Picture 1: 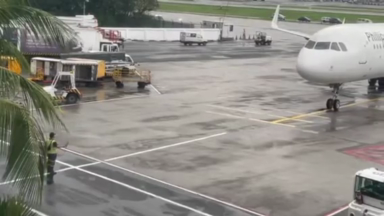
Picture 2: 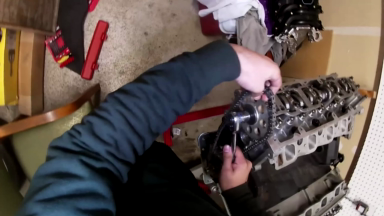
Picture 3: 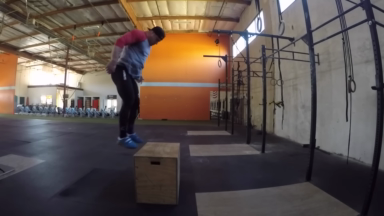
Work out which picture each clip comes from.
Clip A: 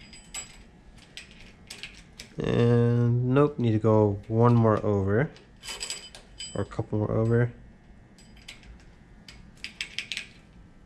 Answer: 2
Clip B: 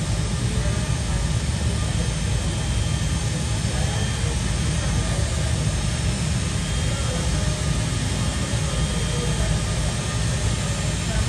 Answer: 1